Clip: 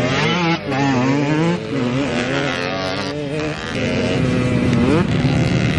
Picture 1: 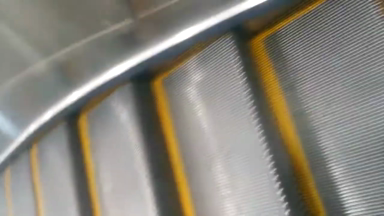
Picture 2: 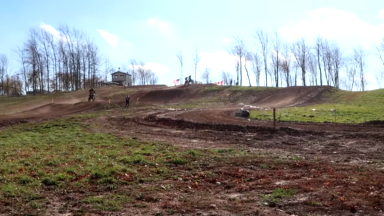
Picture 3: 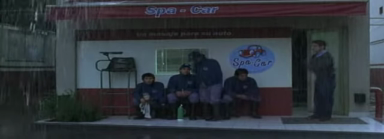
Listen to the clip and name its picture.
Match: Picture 2